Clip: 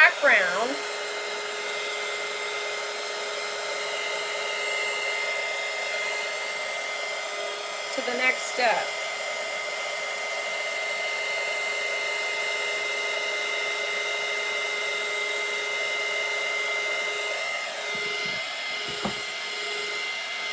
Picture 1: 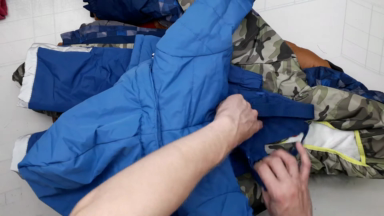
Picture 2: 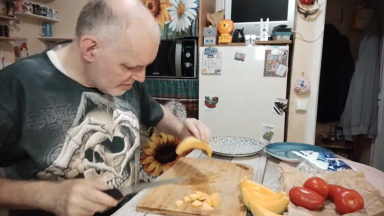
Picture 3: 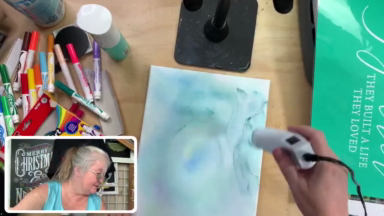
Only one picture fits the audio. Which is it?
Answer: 3